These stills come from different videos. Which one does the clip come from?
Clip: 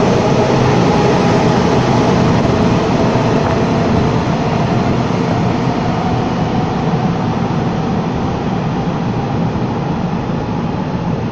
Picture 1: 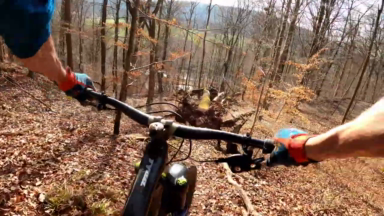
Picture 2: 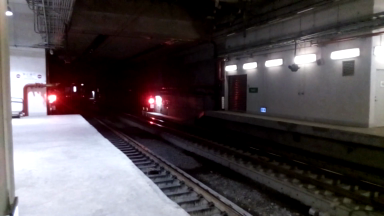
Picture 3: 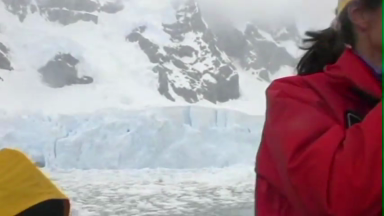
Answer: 2